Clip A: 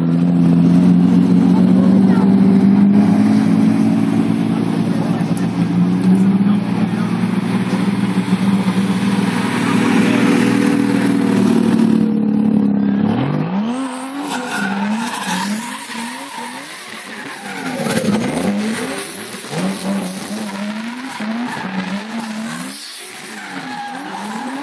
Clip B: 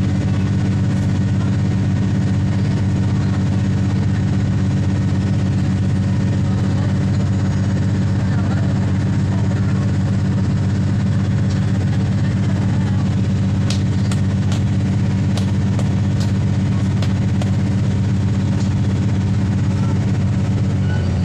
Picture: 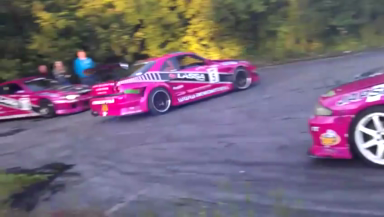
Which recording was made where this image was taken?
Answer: A